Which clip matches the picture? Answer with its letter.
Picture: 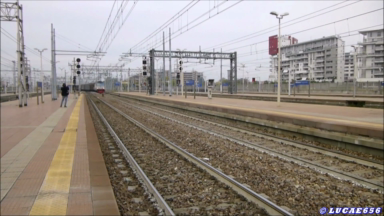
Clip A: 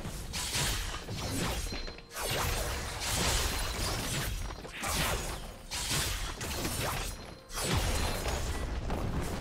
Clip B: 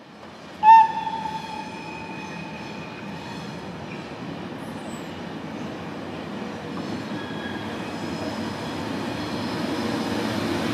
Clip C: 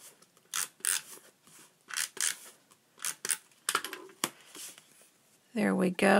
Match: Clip B